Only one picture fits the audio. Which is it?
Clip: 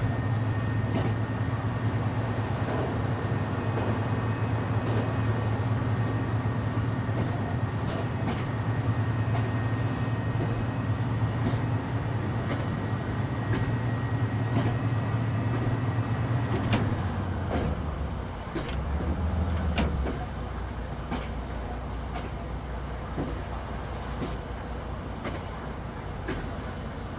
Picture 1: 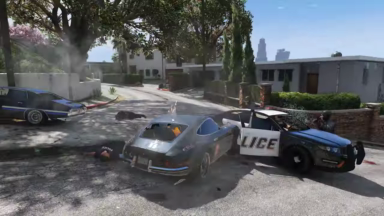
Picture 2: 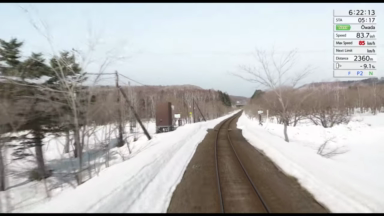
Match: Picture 2